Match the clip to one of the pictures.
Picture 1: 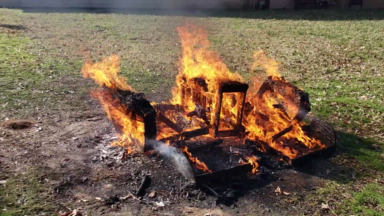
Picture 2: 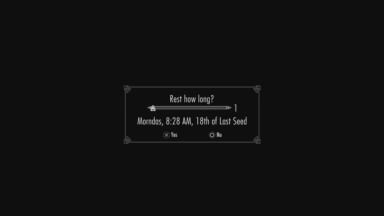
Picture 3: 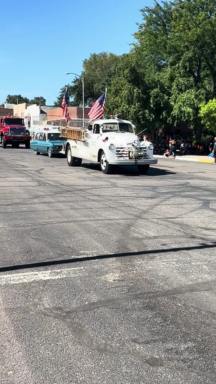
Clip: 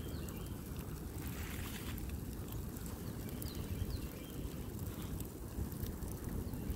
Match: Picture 1